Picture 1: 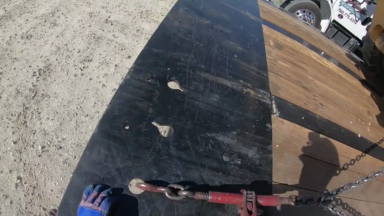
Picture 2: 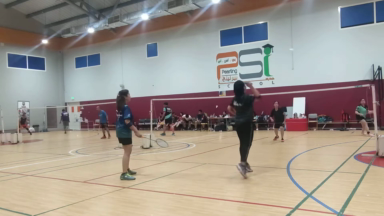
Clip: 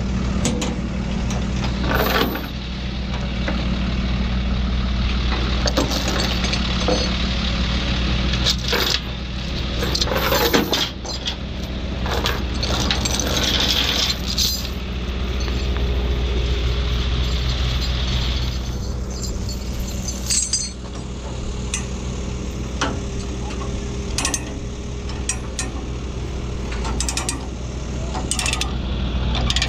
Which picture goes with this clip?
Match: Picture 1